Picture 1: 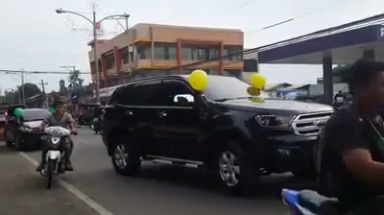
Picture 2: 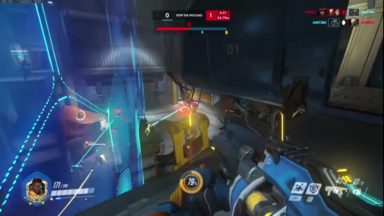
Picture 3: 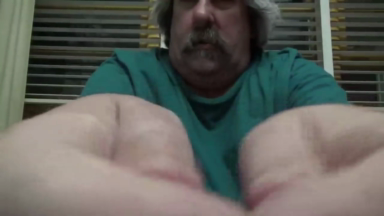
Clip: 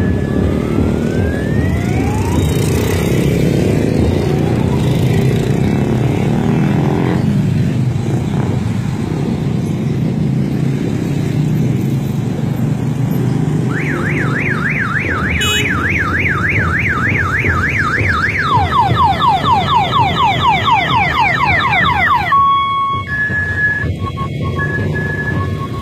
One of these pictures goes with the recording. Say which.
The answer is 1